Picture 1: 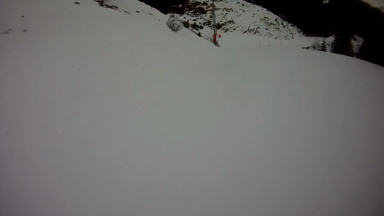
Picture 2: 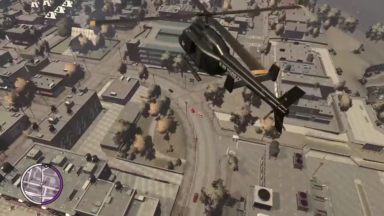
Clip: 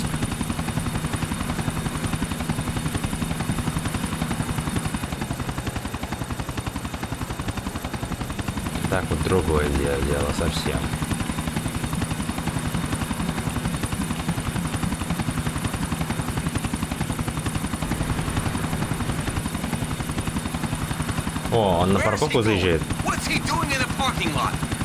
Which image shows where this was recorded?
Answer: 2